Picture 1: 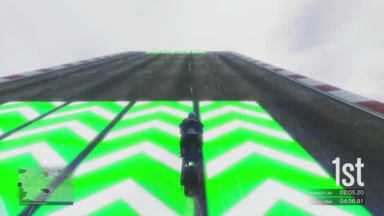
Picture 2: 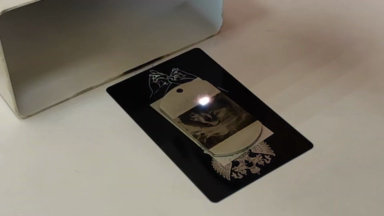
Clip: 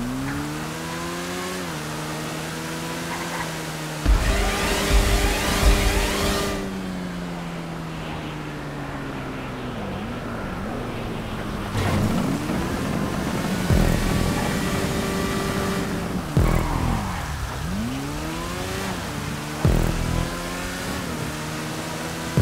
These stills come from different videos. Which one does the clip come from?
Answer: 1